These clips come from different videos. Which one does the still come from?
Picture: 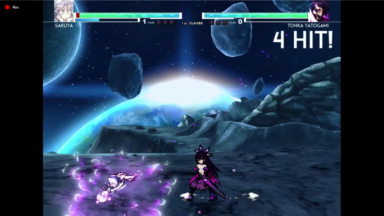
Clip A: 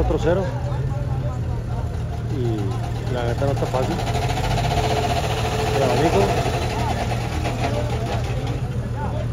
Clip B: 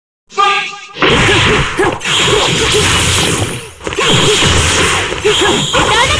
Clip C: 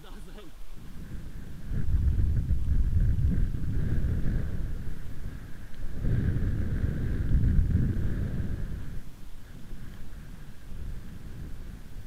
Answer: B